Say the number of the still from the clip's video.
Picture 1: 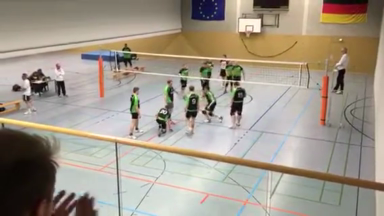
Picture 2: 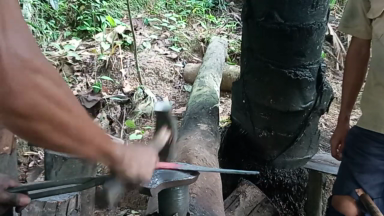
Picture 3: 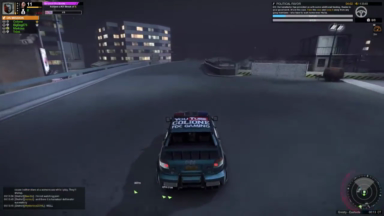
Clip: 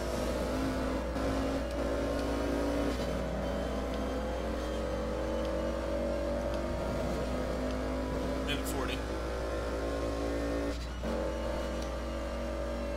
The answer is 3